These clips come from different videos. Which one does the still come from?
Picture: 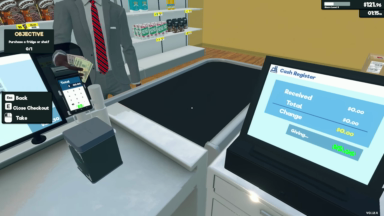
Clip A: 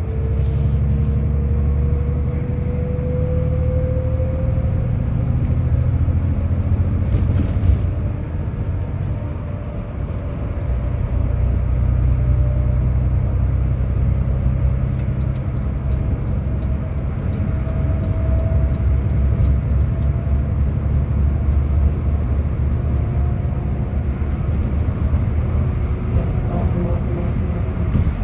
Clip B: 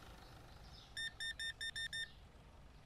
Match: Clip B